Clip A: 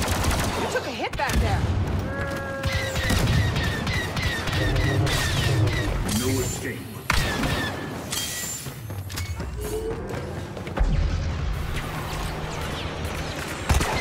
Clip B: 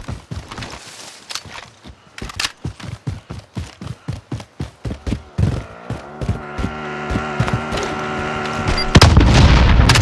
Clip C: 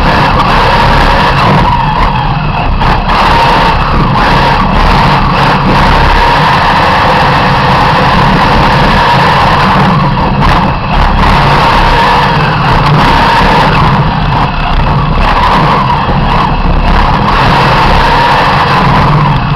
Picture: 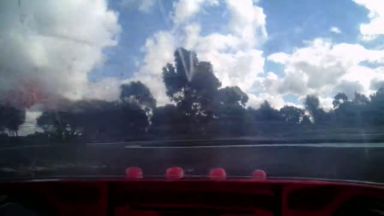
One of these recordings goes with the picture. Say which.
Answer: C